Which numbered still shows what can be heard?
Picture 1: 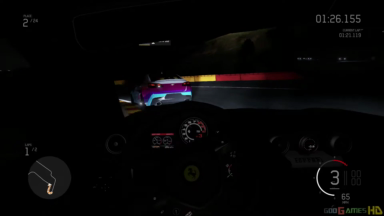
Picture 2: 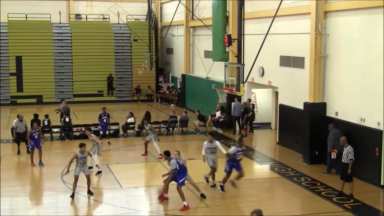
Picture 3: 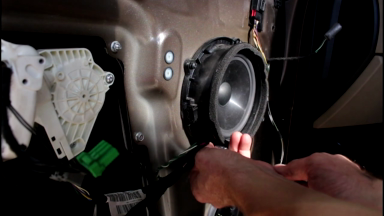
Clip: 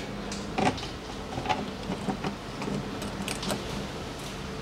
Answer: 3